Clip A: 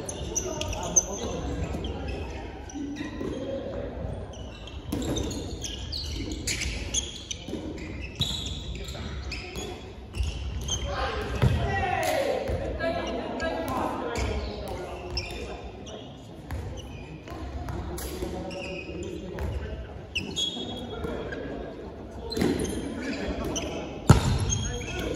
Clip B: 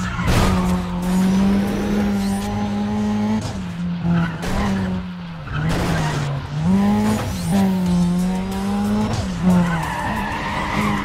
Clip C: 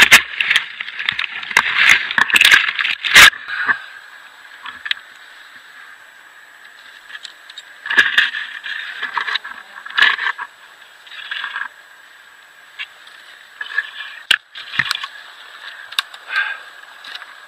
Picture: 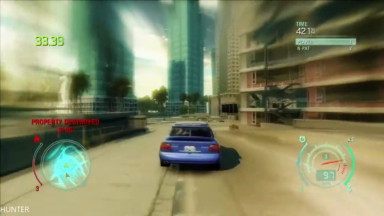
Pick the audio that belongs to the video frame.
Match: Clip B